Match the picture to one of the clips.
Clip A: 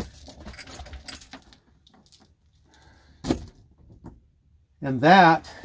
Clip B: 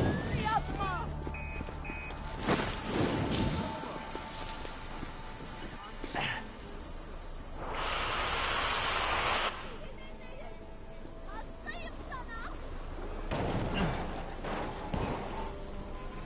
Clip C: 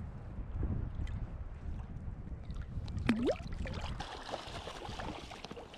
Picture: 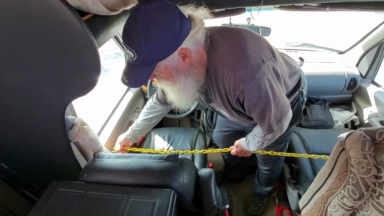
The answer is A